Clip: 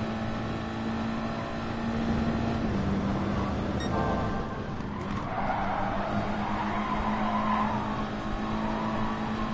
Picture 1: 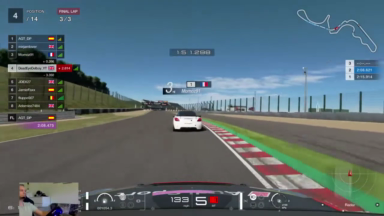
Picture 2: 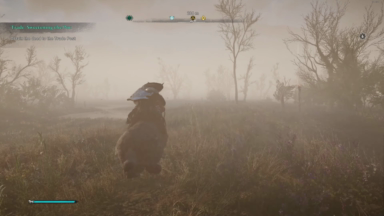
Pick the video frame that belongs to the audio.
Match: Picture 1